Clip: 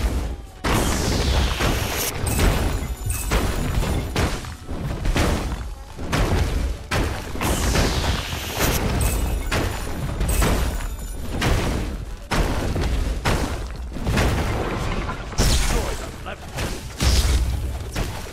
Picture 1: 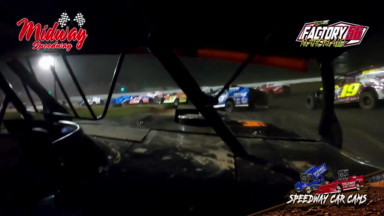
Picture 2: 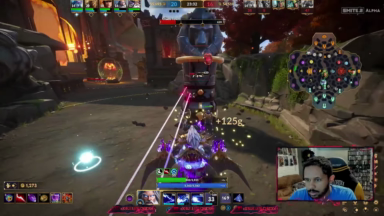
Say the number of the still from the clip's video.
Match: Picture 2